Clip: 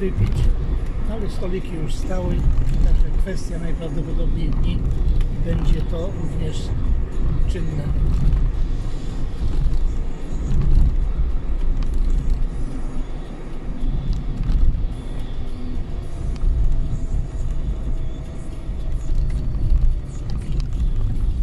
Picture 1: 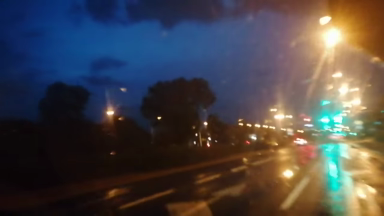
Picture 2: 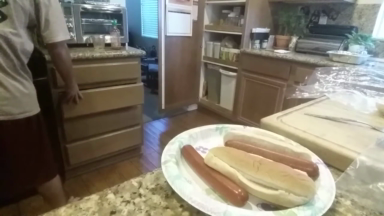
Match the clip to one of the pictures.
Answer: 1